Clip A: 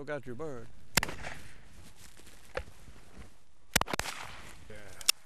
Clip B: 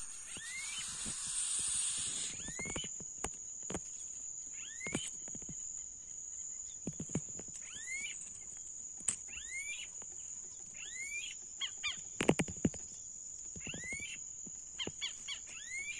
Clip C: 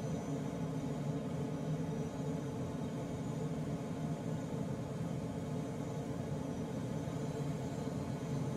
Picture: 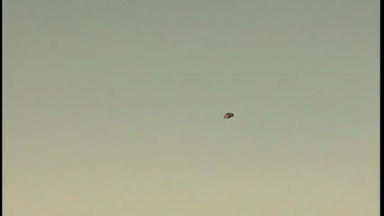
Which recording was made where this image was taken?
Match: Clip A